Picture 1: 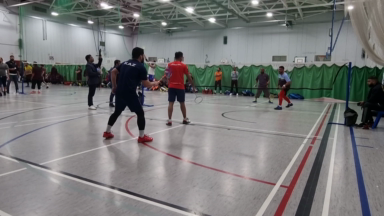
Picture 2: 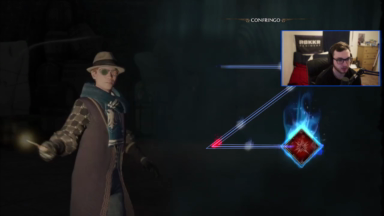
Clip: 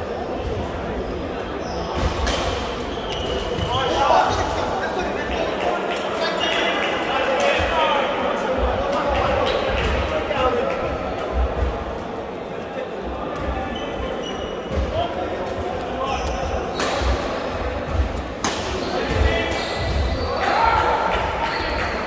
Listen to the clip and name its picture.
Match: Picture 1